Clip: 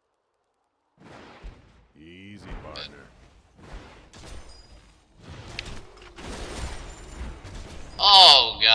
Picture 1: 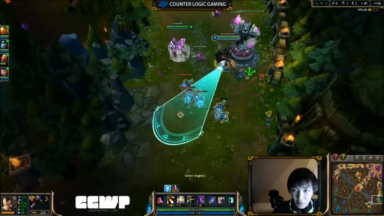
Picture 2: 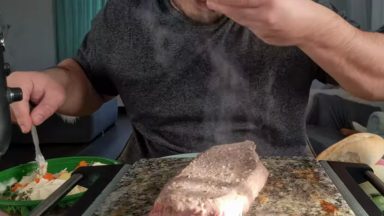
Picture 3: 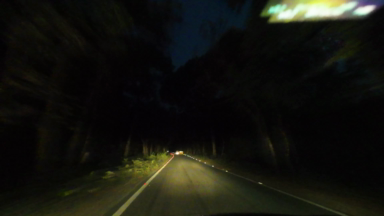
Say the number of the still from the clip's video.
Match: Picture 1